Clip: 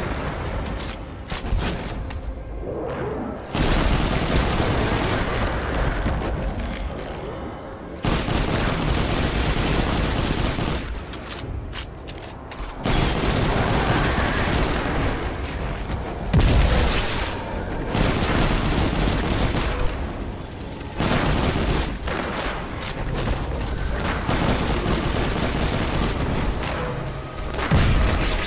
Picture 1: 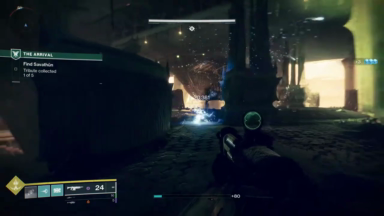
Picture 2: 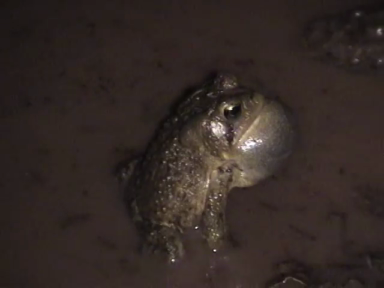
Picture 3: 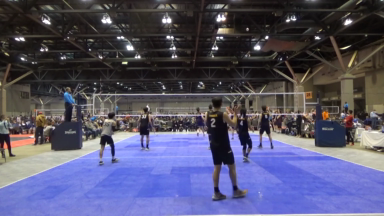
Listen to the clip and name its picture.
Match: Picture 1